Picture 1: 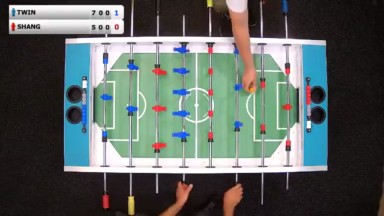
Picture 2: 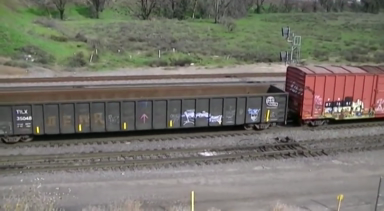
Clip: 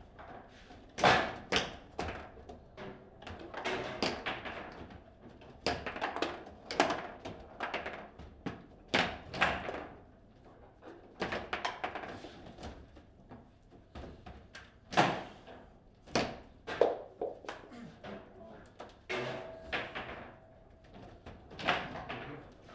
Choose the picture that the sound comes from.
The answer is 1